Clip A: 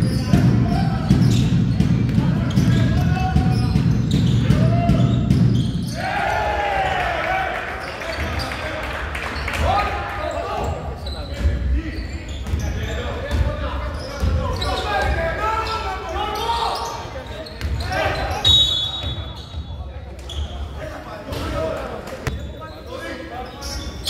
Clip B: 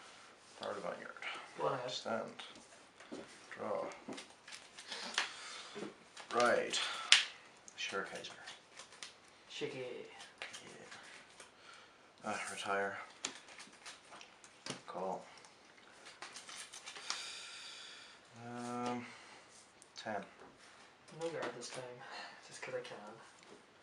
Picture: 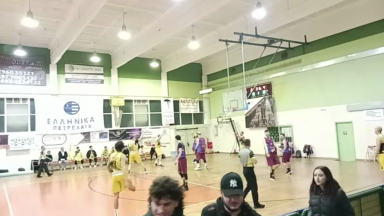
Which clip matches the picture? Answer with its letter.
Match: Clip A